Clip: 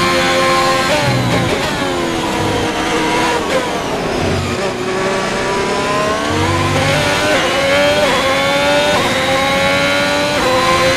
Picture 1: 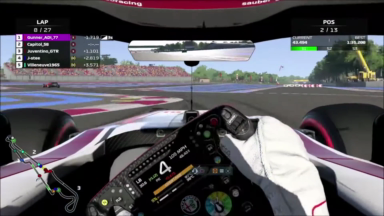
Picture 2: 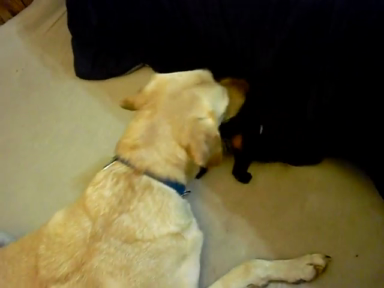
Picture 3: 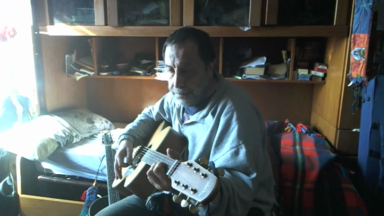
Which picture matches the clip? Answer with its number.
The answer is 1